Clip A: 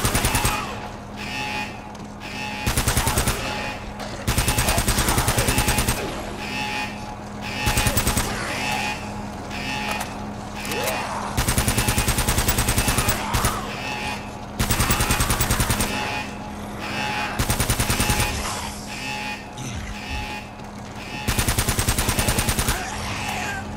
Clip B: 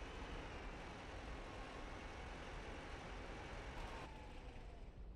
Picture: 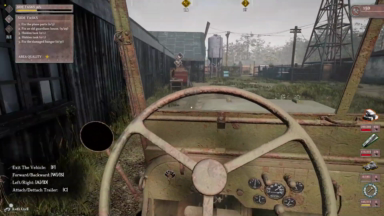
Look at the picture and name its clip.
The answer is B